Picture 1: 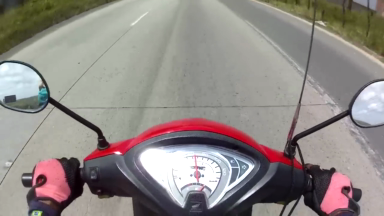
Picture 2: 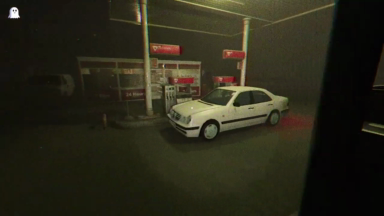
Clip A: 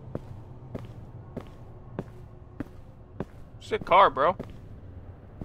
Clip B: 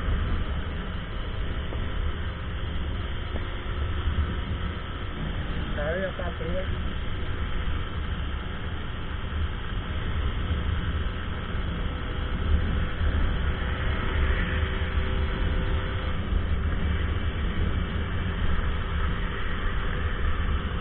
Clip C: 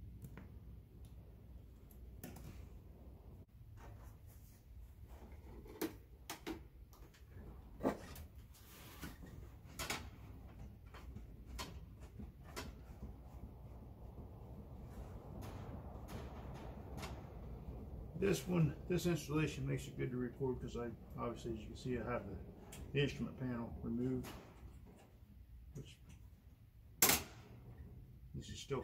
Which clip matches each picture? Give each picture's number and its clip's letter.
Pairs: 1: B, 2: A